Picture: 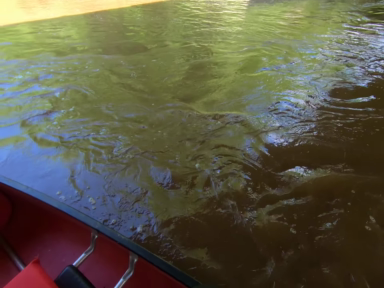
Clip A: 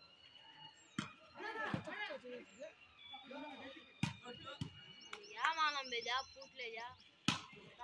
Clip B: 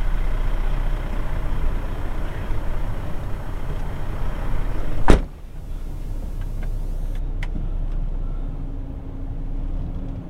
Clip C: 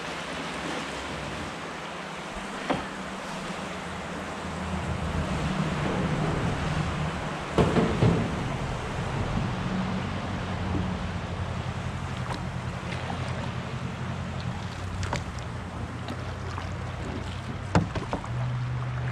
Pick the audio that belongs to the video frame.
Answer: C